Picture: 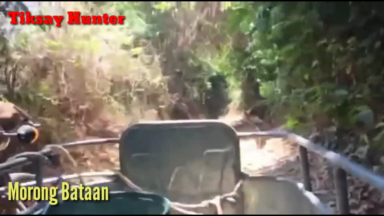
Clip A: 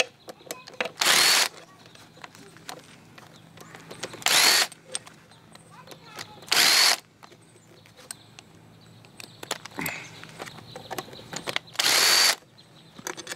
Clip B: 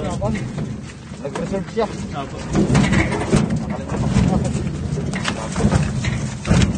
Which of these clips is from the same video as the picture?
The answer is B